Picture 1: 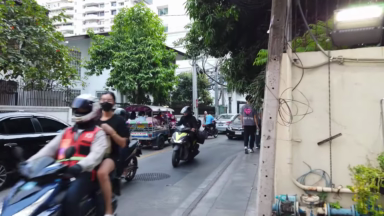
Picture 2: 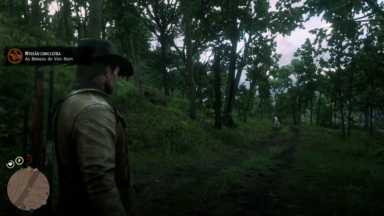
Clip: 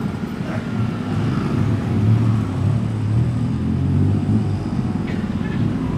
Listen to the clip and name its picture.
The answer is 1